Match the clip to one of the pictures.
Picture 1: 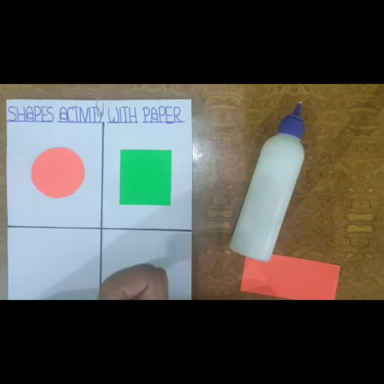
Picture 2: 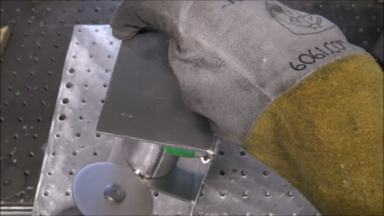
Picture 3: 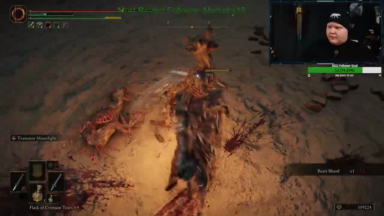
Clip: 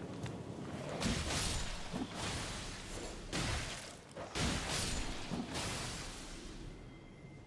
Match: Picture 3